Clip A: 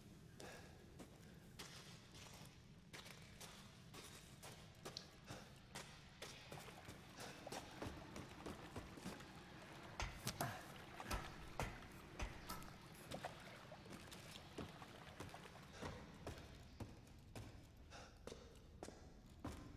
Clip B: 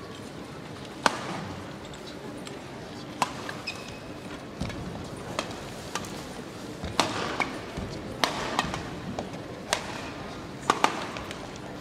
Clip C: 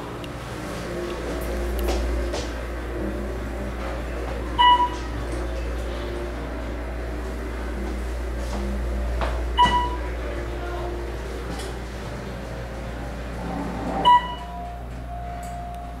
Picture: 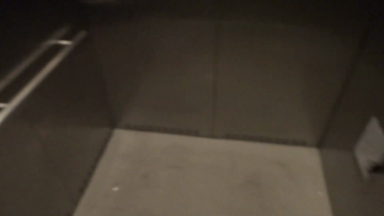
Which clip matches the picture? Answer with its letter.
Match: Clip C